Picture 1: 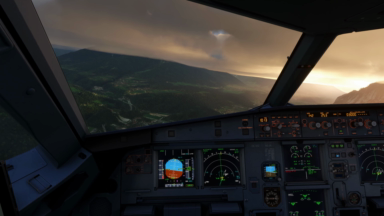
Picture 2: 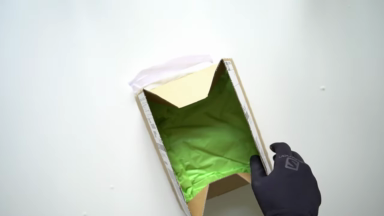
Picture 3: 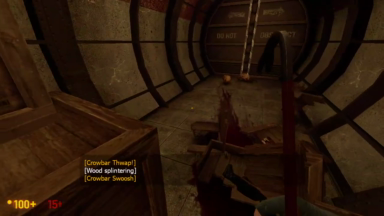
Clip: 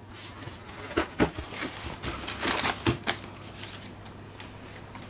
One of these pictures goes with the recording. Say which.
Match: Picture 2